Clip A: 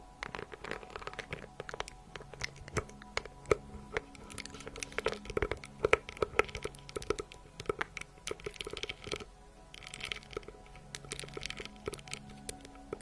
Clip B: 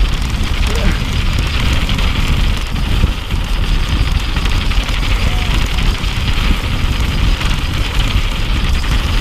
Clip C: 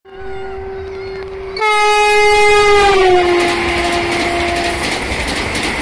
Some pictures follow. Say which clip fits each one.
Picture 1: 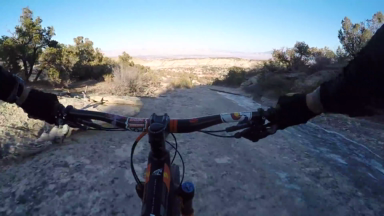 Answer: B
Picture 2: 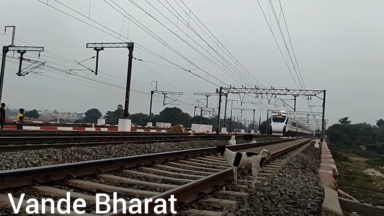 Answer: C